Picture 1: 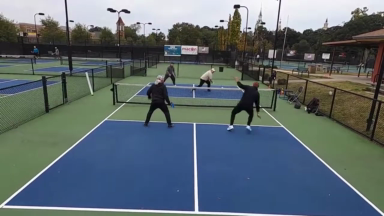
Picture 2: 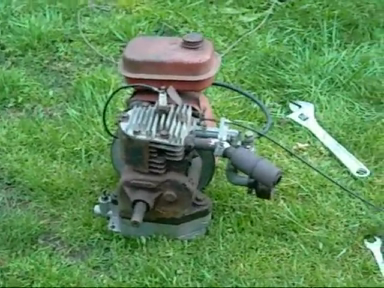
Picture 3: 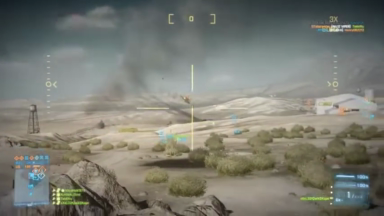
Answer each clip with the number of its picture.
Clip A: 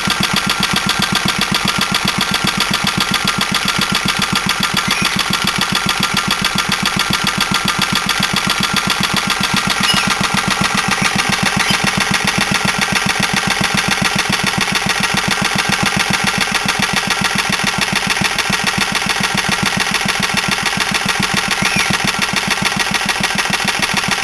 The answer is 2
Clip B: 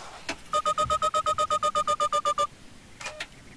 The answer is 3